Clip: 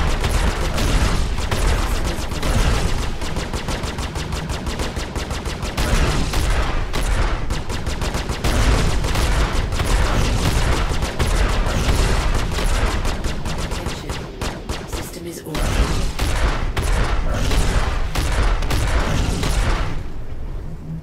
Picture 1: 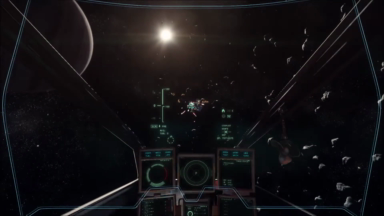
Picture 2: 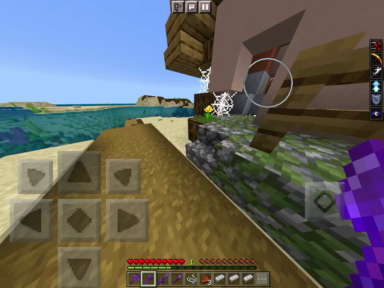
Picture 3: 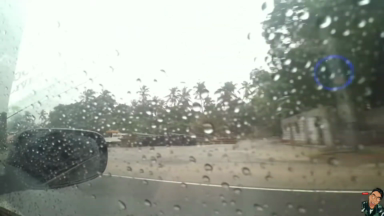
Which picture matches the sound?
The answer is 1